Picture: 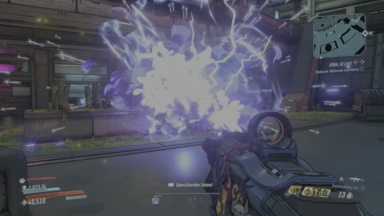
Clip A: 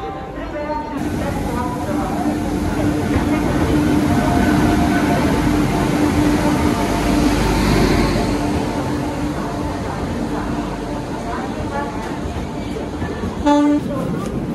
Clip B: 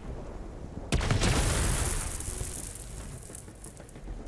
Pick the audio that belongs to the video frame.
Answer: B